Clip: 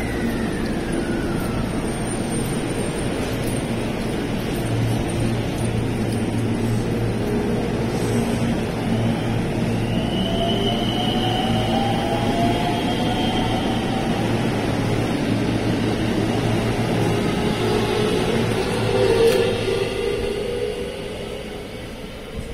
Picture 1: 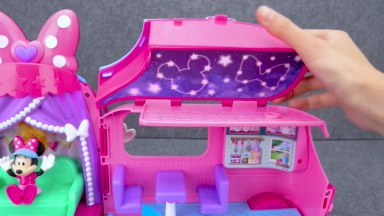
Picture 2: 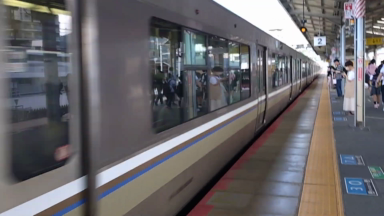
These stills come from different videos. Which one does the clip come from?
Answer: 2